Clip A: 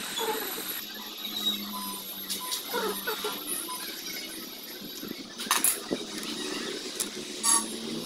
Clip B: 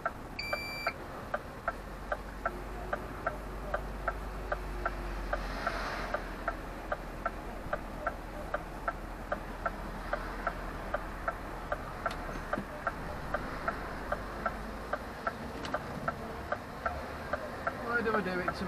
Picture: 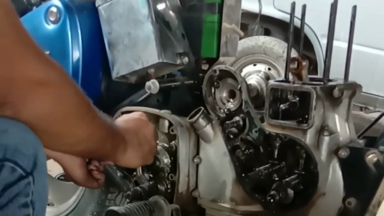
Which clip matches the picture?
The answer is A